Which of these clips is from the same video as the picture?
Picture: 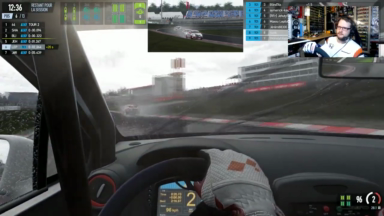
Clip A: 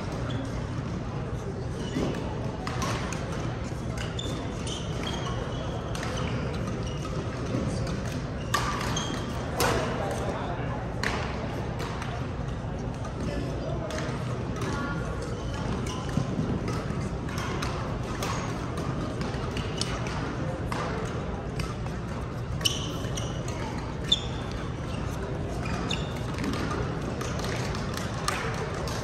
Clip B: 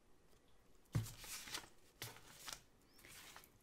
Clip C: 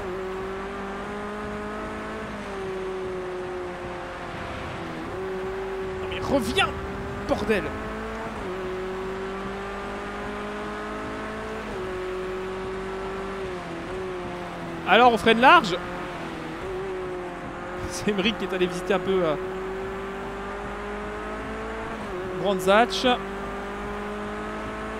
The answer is C